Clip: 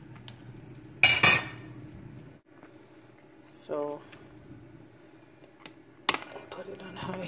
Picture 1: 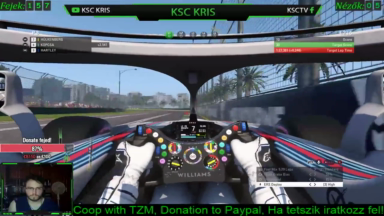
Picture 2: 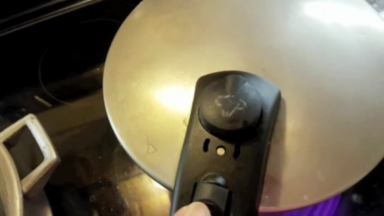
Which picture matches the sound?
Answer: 2